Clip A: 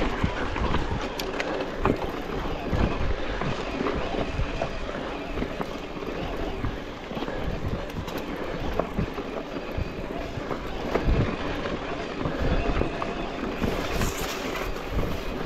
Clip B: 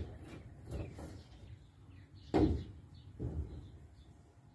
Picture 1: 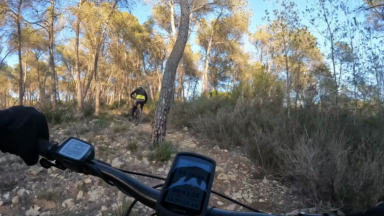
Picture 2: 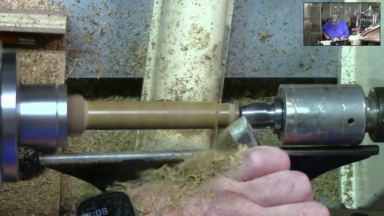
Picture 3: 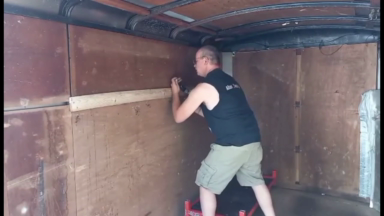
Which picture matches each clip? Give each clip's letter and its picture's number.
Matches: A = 1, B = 3